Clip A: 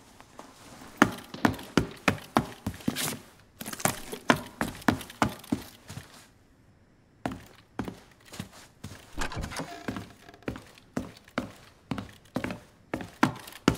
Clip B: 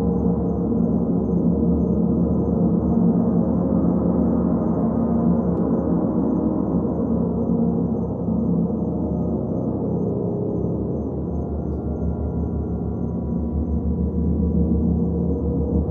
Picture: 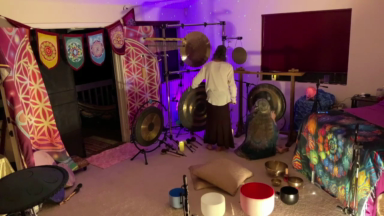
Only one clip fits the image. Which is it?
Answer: B